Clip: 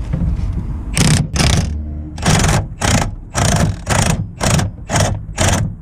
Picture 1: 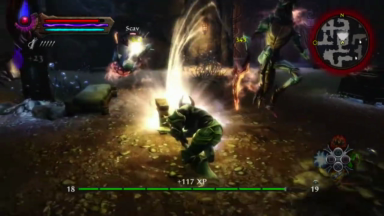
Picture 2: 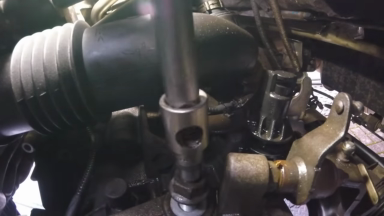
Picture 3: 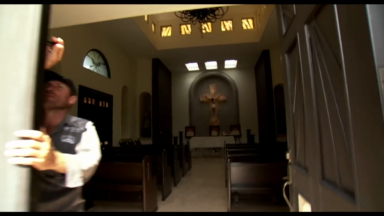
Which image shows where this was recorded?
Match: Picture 2